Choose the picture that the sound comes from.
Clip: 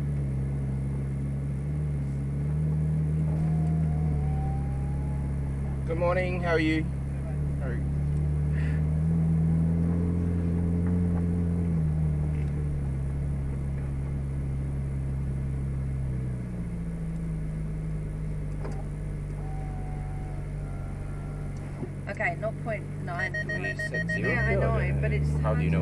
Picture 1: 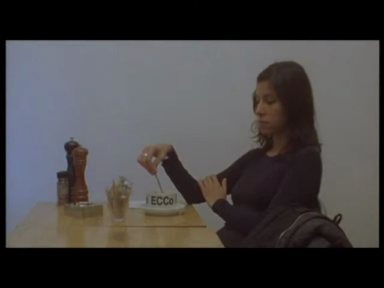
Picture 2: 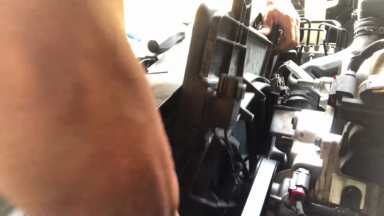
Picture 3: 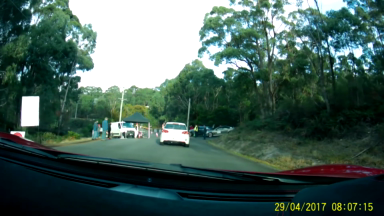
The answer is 3